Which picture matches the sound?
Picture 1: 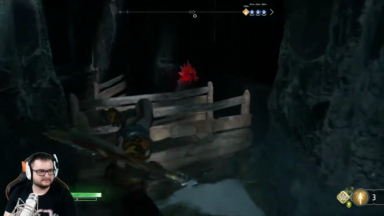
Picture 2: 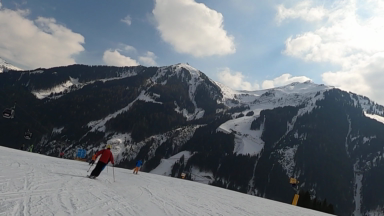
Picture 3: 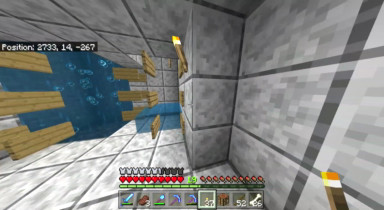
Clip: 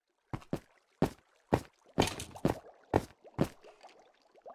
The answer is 3